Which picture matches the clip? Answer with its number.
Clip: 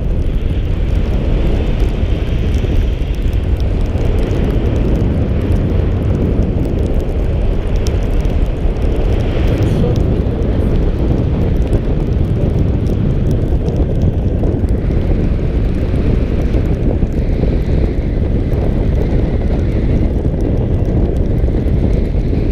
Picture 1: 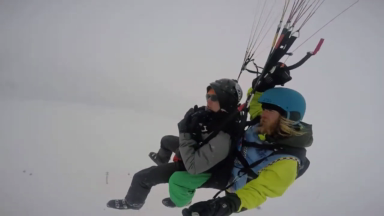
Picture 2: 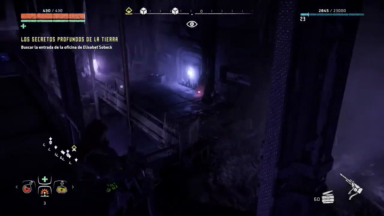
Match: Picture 1